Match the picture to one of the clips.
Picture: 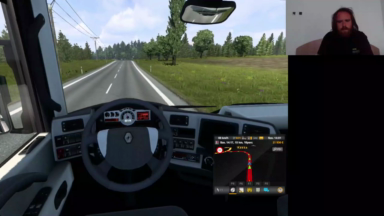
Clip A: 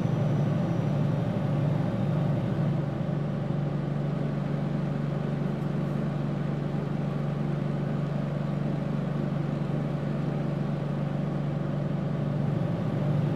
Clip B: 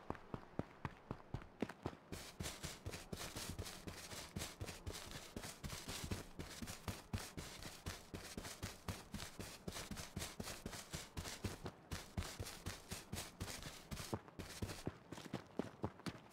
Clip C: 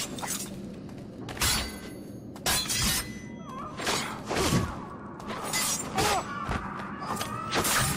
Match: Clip A